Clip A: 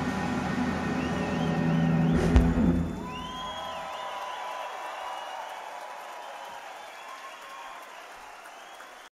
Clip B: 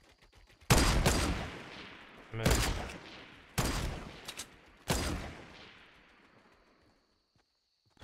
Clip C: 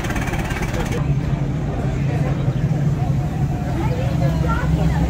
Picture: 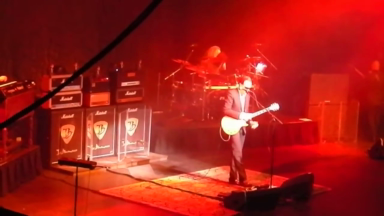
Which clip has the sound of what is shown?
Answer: A